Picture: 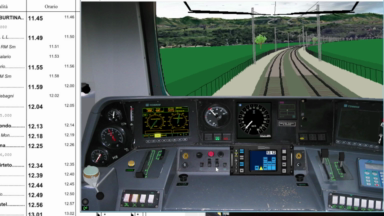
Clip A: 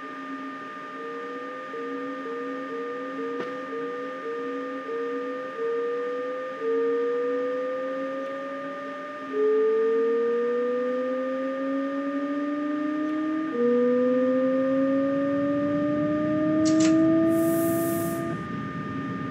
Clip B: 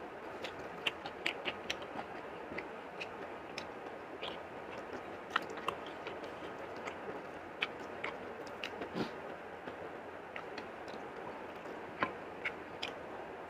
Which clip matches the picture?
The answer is A